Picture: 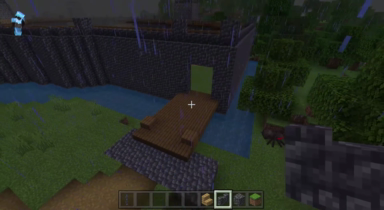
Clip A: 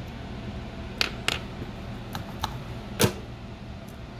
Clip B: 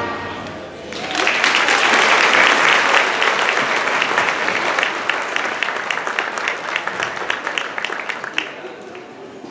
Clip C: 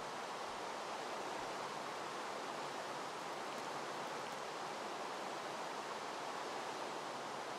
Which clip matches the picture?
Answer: C